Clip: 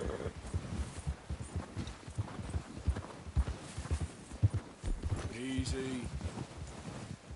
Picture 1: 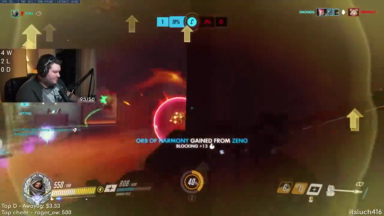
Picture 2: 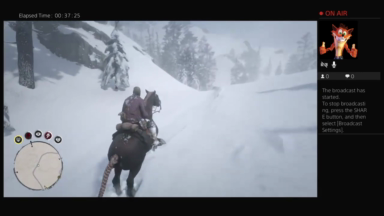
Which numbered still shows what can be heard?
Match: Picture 2